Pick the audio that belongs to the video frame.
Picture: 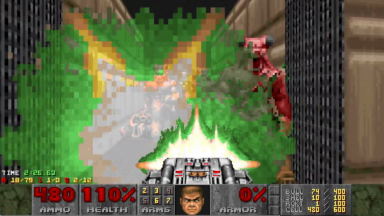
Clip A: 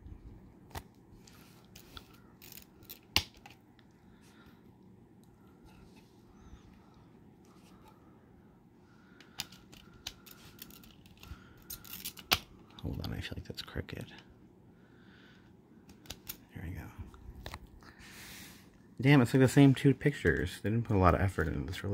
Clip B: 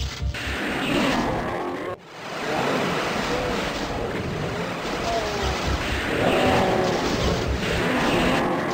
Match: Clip B